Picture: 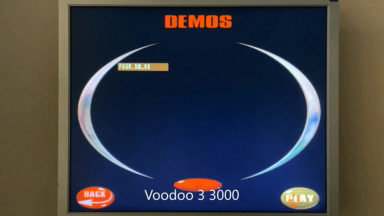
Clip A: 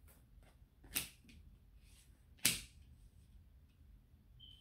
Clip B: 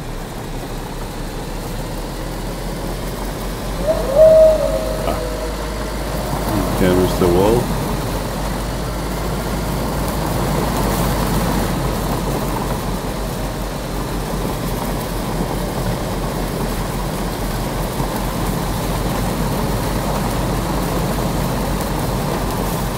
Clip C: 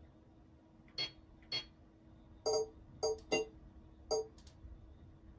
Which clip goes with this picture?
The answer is C